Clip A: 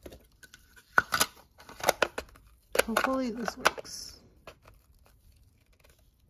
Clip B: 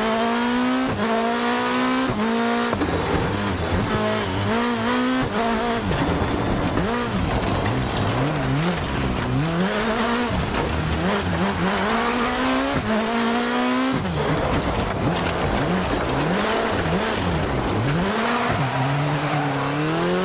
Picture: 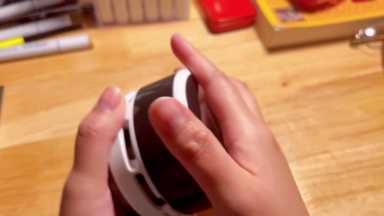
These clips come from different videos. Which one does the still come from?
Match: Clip A